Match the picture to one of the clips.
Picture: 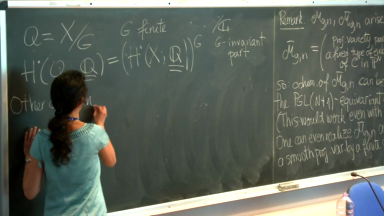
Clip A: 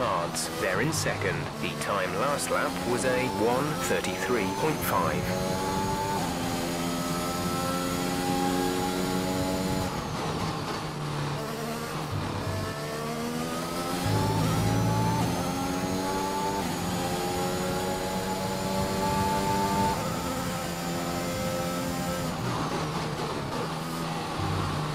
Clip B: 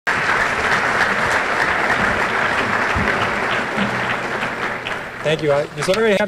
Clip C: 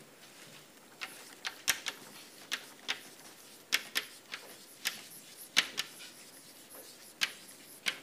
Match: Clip C